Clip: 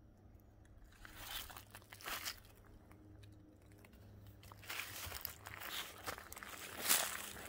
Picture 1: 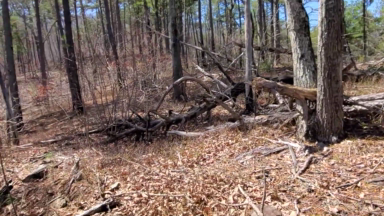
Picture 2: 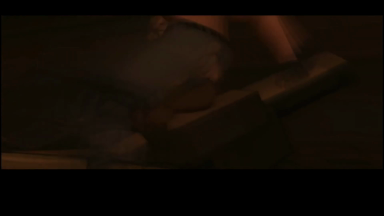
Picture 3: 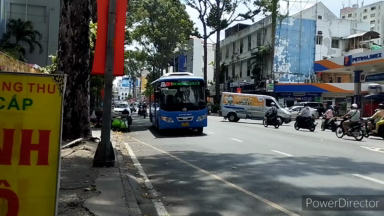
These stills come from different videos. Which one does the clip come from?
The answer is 1